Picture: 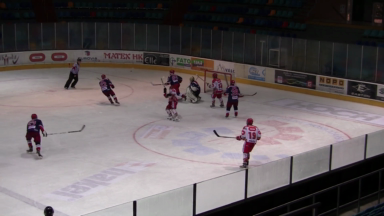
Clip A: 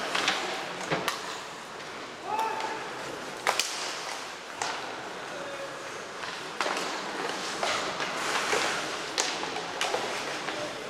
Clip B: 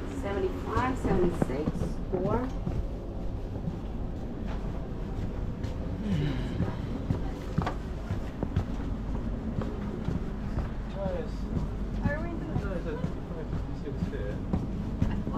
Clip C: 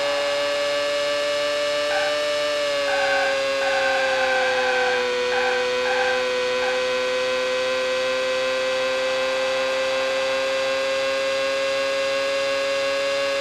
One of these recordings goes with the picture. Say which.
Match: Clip A